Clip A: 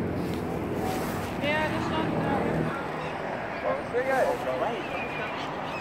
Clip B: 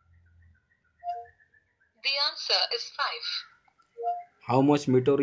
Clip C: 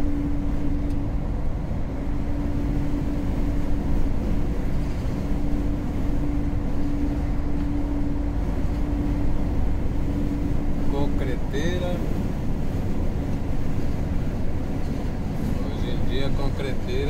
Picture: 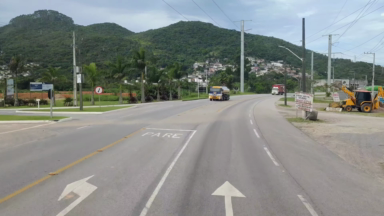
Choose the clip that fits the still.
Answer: C